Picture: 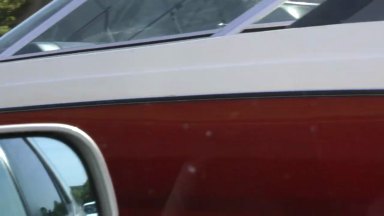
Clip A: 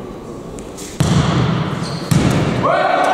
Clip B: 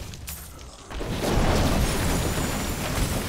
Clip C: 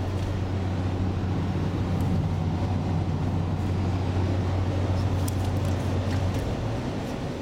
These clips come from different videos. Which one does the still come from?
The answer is C